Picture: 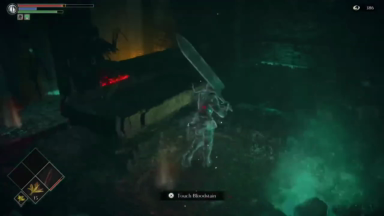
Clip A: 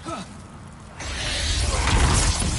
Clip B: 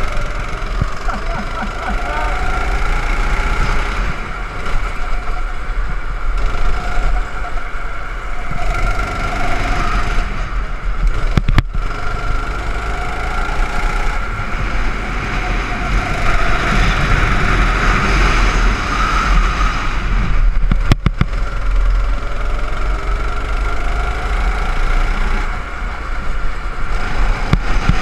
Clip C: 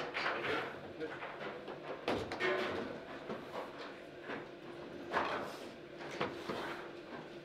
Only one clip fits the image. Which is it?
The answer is A